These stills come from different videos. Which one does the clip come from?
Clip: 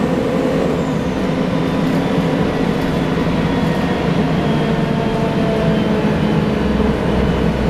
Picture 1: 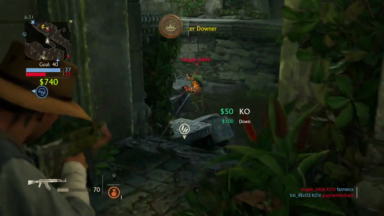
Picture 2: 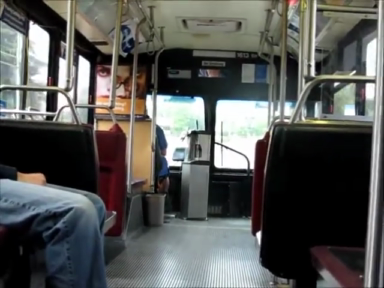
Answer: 2